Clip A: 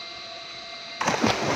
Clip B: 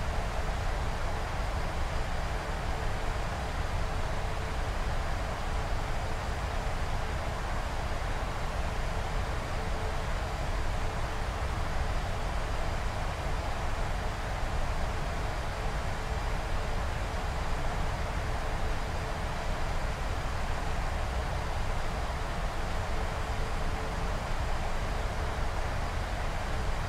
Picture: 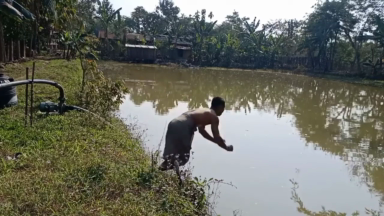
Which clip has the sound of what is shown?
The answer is A